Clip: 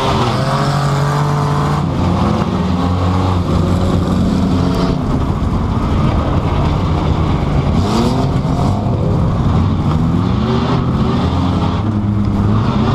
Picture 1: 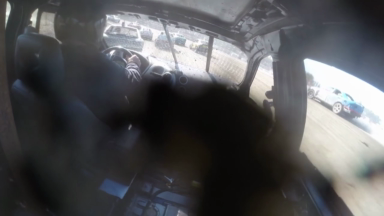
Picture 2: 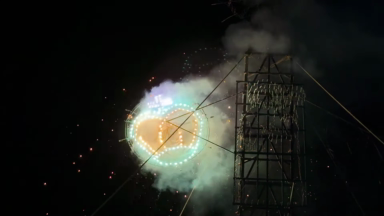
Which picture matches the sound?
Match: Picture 1